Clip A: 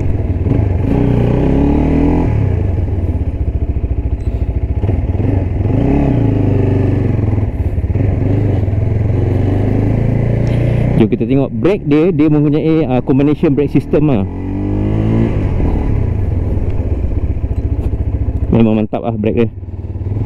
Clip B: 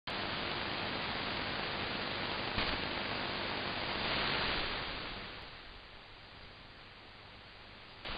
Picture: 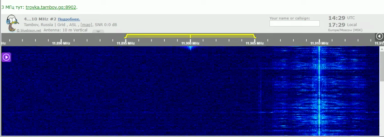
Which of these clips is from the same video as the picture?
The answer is B